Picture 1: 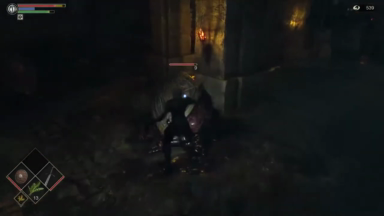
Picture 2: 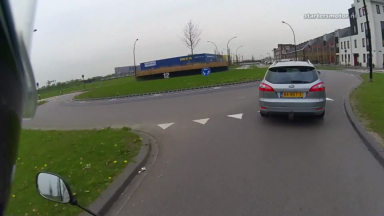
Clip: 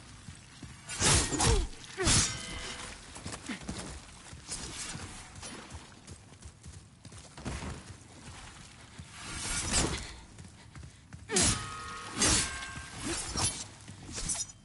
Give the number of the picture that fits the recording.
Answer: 1